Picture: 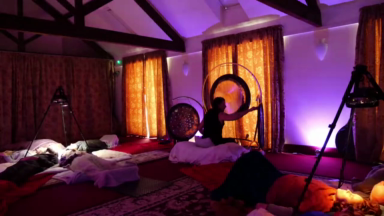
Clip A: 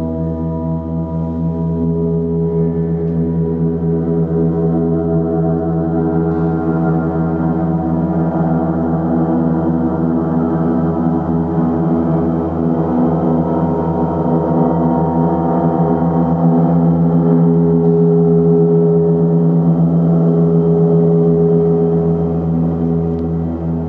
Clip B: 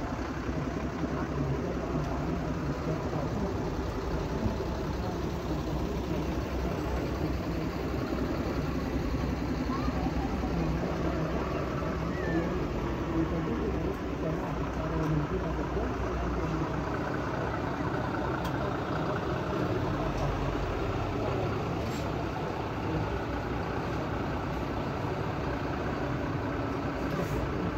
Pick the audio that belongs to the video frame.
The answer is A